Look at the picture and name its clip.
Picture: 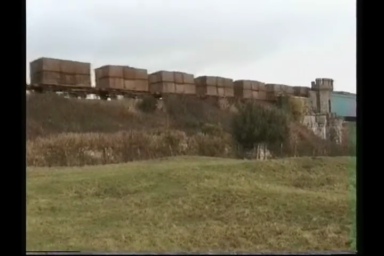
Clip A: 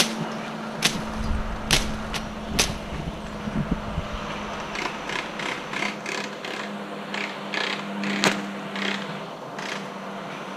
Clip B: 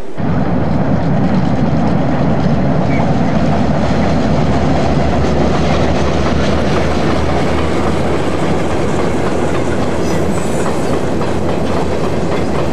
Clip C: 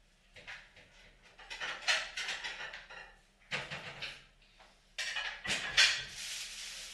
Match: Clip B